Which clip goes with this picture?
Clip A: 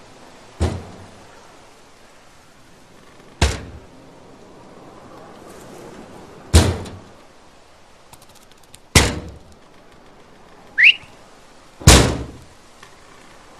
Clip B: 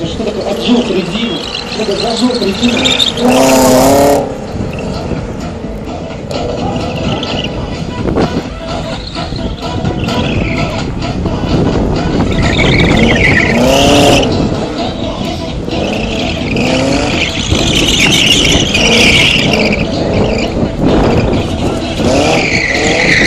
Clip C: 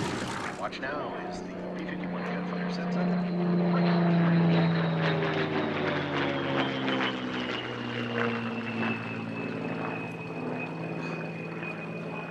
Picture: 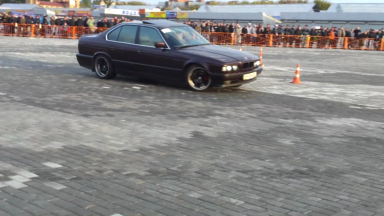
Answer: B